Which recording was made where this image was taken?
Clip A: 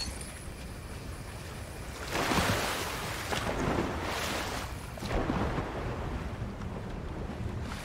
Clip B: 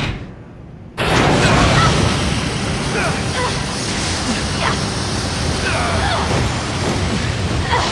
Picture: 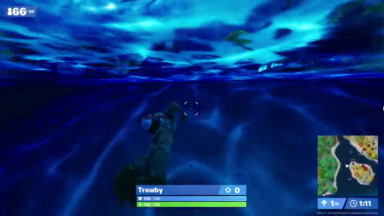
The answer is A